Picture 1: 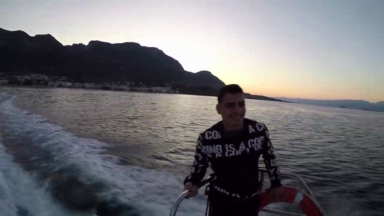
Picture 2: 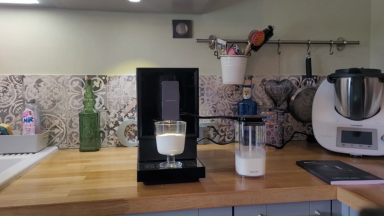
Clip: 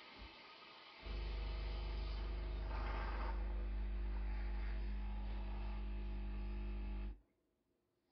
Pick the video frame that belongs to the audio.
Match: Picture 2